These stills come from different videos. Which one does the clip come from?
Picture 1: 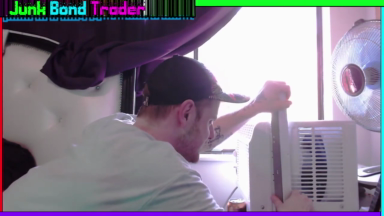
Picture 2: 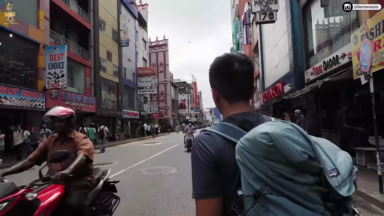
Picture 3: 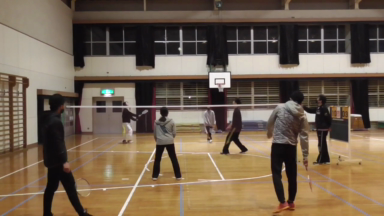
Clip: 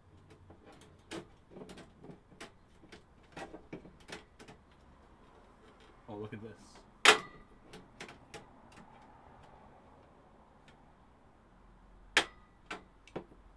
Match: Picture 1